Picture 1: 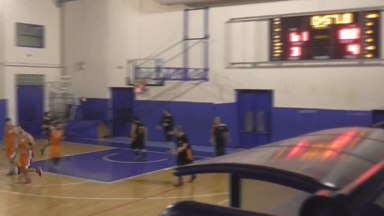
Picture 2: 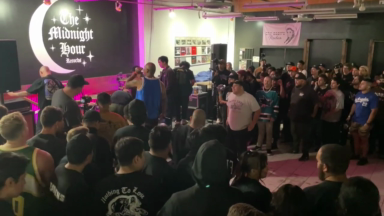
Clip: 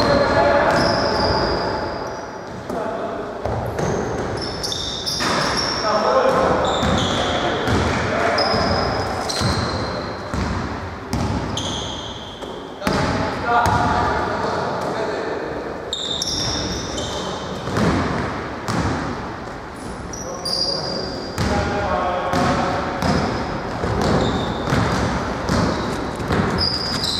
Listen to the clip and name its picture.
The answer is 1